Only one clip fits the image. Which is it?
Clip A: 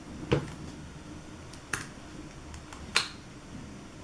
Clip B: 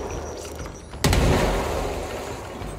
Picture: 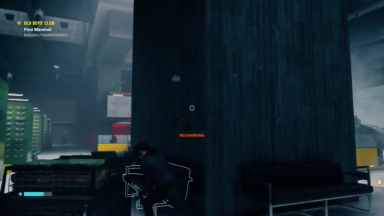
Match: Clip B